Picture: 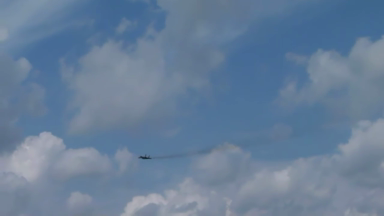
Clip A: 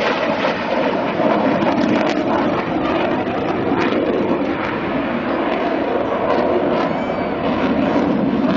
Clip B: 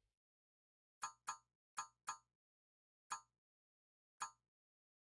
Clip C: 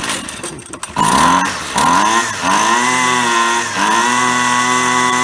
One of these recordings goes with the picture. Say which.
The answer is A